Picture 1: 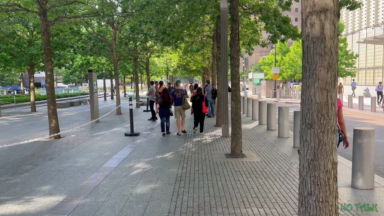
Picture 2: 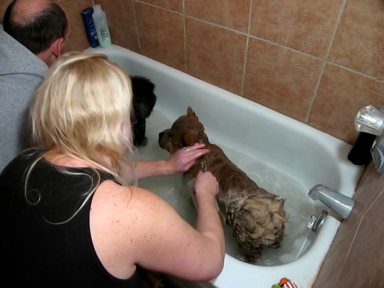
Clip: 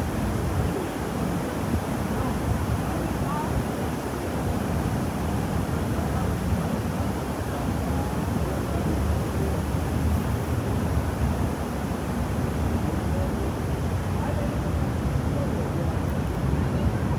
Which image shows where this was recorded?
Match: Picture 1